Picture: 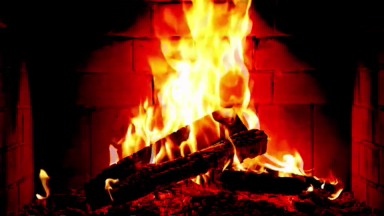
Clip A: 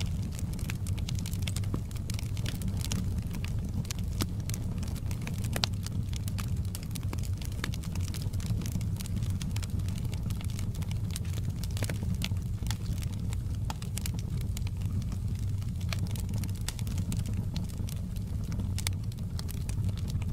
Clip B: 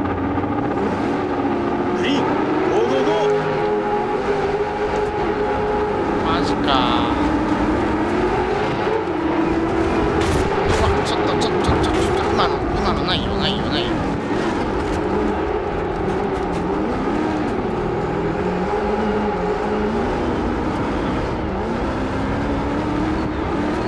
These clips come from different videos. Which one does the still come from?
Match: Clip A